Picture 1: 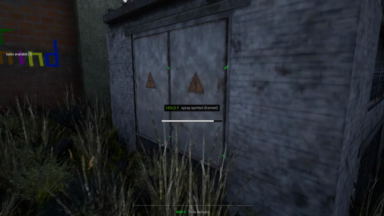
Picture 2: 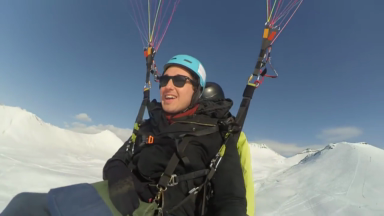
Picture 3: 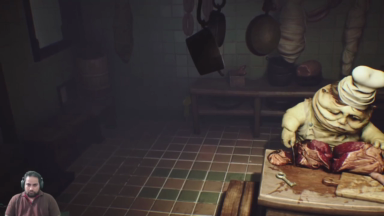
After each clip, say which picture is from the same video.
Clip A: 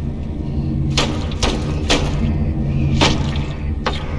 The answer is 3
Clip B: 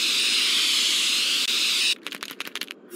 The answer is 1